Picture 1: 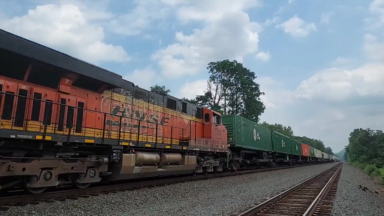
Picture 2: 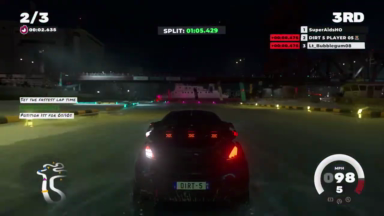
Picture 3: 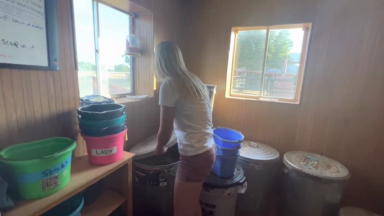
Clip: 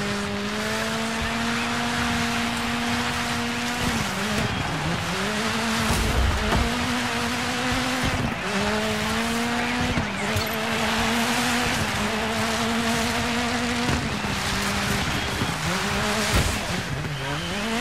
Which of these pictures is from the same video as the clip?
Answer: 2